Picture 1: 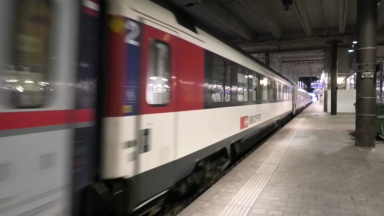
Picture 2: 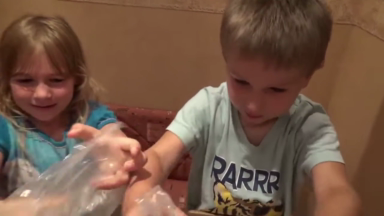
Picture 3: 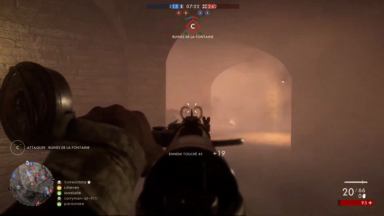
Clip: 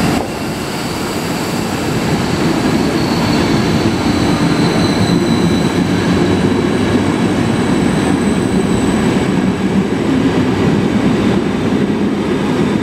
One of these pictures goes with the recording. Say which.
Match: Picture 1